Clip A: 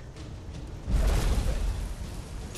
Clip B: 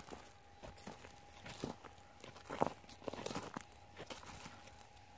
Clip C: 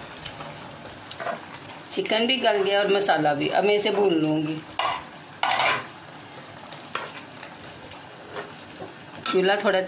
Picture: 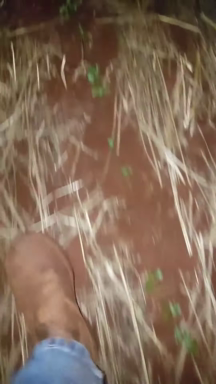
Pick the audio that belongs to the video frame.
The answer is B